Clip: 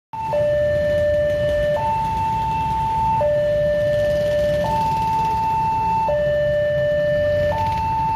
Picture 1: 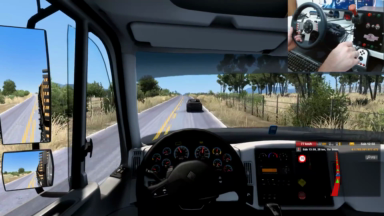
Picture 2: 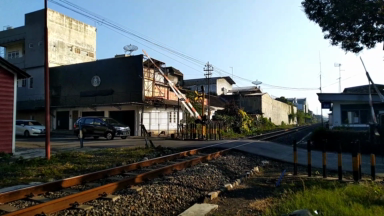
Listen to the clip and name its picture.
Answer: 2